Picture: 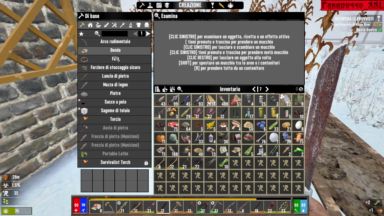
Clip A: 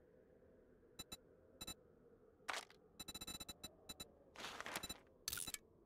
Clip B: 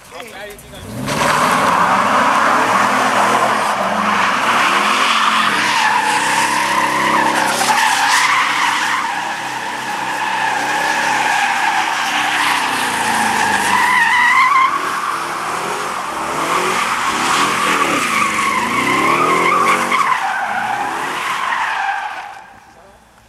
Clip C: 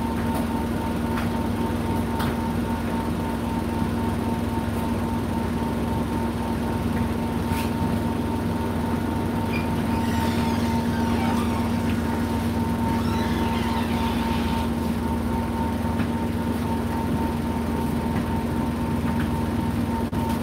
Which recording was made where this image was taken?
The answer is A